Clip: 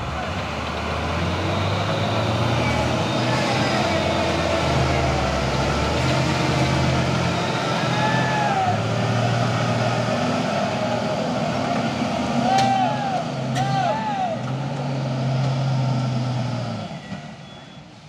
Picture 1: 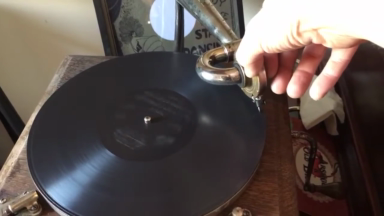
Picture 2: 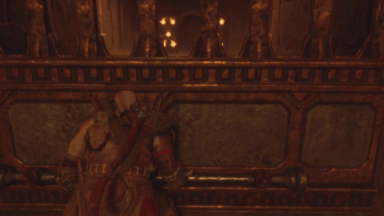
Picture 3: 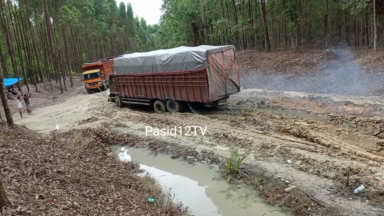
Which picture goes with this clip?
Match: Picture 3